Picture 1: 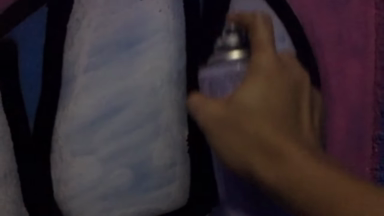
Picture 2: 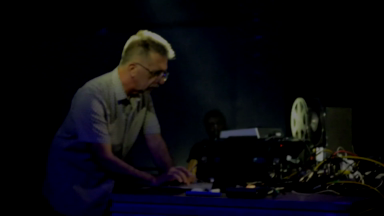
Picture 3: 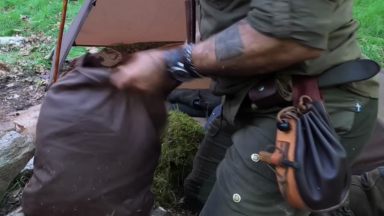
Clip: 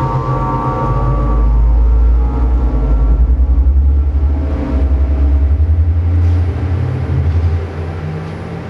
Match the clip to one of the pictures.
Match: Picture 2